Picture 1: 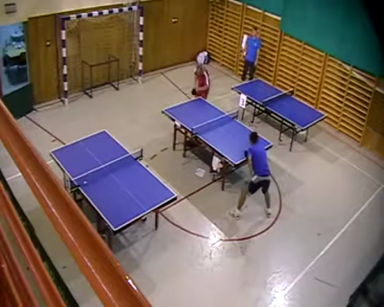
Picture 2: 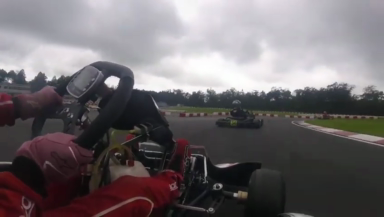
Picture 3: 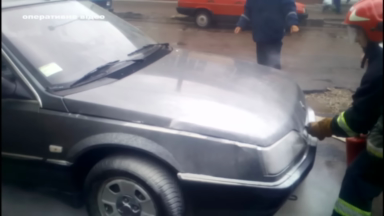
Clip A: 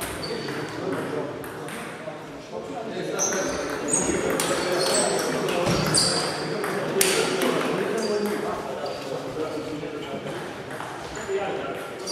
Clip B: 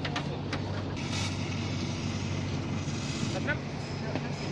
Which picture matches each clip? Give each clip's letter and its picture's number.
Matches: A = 1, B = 3